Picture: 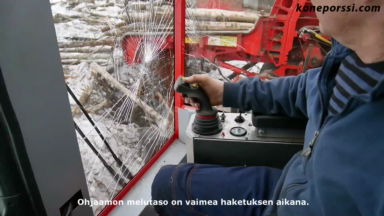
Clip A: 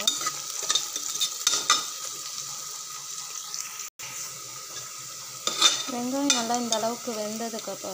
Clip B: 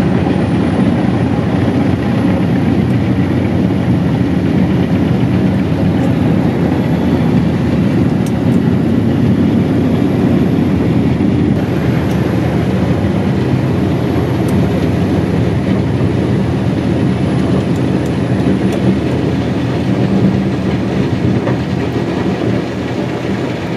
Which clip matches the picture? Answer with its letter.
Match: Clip B